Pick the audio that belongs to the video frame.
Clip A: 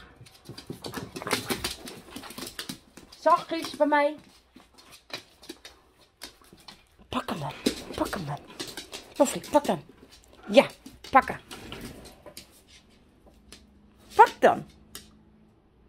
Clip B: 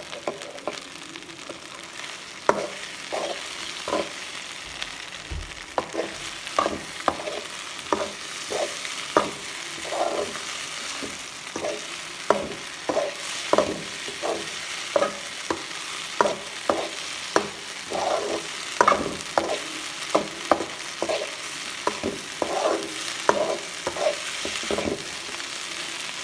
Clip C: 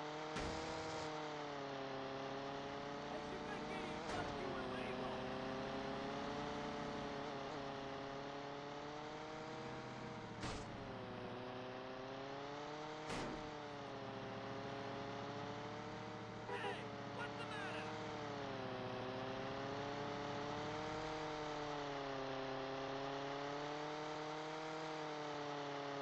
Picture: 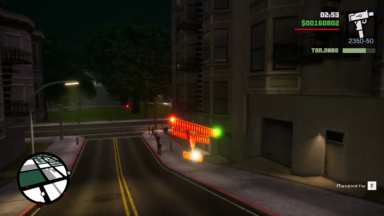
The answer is C